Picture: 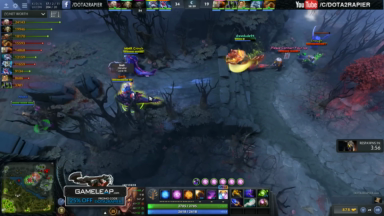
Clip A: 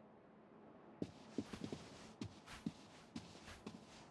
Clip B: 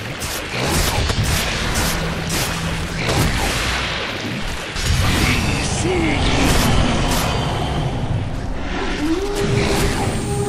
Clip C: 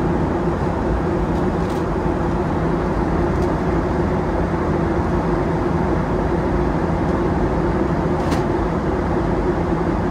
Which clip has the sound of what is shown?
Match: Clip B